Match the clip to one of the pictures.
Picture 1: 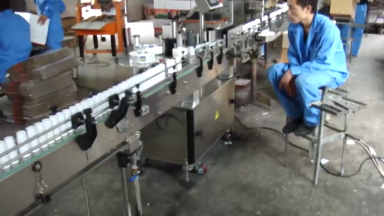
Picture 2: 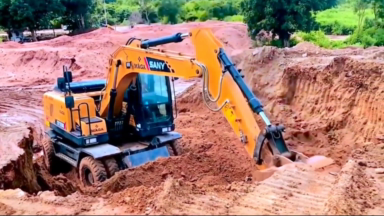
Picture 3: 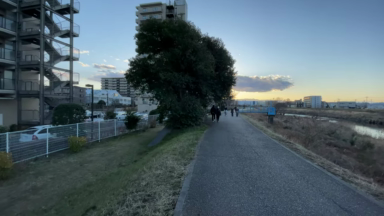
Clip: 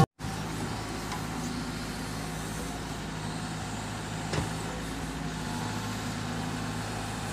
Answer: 2